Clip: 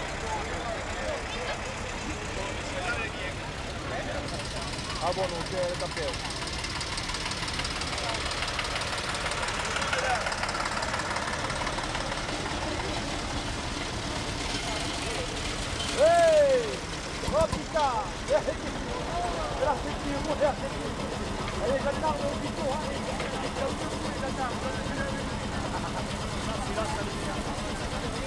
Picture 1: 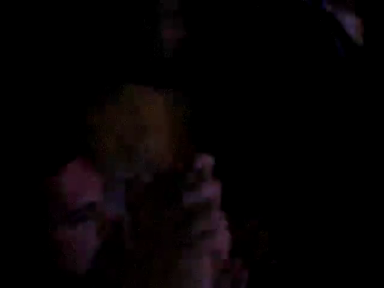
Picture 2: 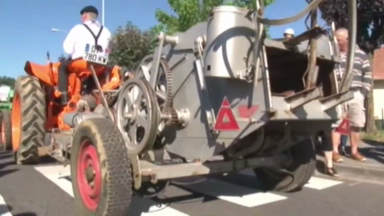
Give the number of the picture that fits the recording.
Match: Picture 2